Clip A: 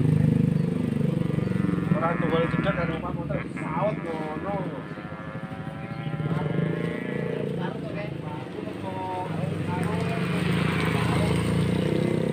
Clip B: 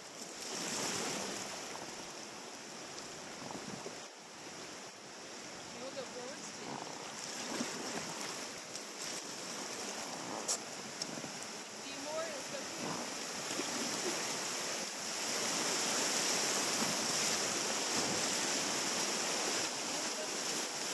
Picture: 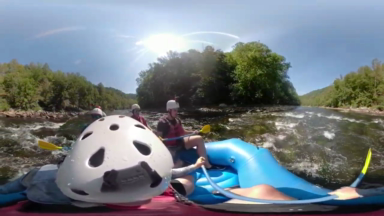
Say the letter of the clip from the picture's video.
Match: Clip B